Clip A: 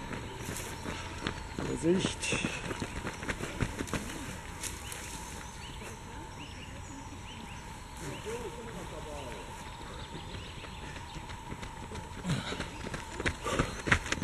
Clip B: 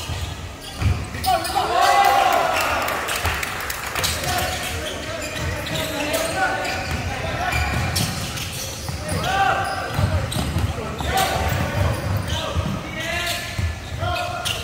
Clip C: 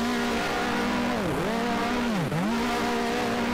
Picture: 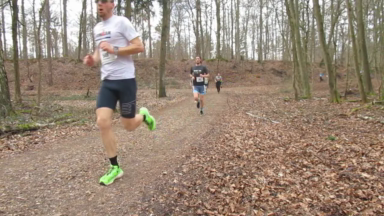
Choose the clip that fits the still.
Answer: A